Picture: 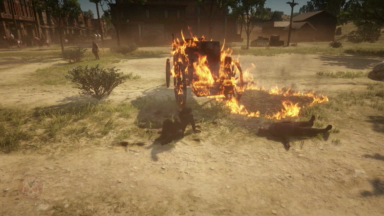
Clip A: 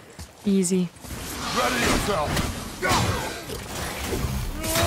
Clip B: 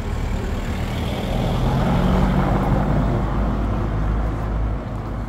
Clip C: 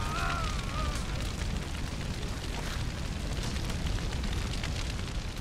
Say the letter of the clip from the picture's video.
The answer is C